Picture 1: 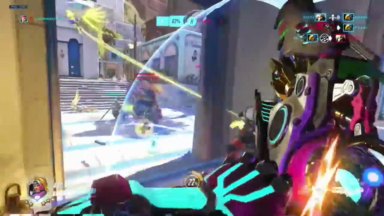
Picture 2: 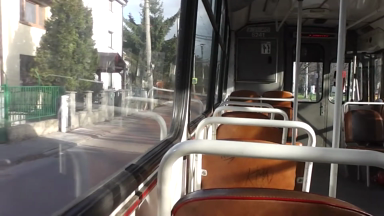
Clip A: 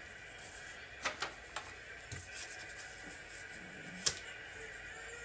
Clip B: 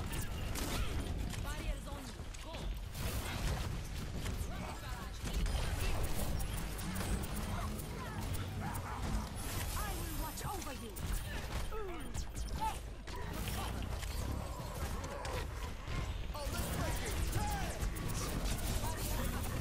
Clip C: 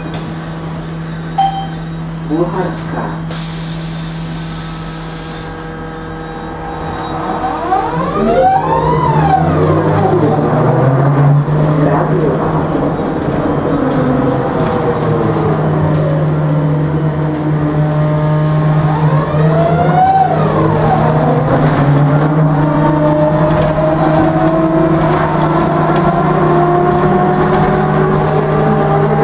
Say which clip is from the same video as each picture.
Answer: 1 B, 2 C